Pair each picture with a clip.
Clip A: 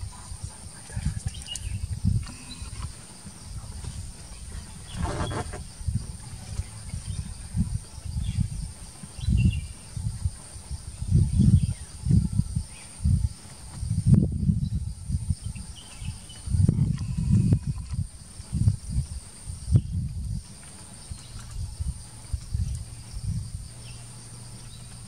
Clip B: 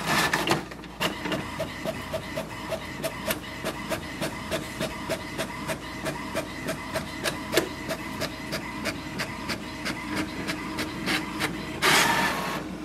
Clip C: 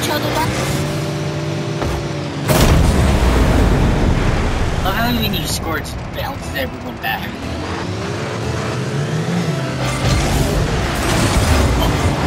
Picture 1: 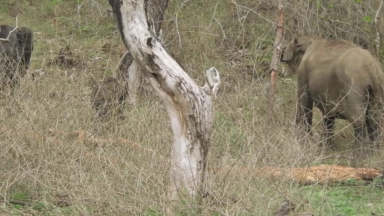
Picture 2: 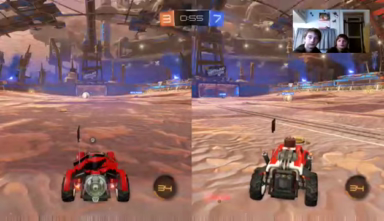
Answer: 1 A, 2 C